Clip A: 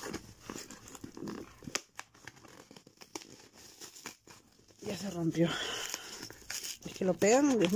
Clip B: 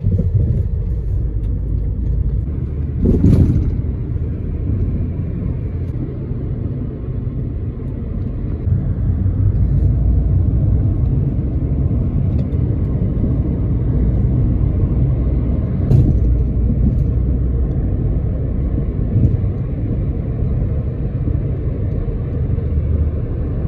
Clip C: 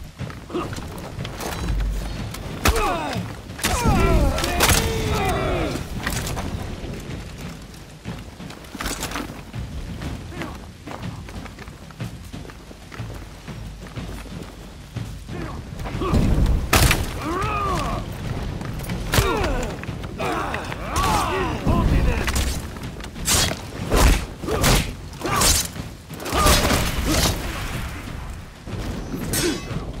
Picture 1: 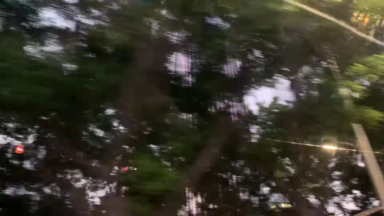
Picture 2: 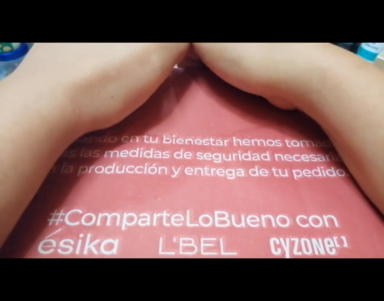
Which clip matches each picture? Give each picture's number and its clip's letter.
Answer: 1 B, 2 A